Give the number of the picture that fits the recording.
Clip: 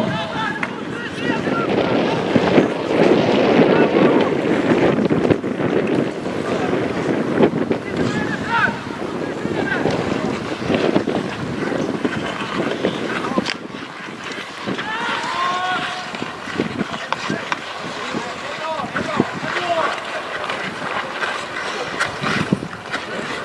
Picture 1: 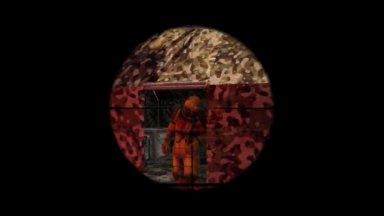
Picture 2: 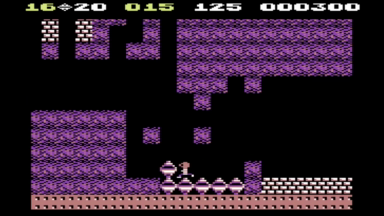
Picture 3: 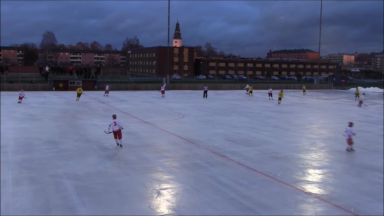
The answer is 3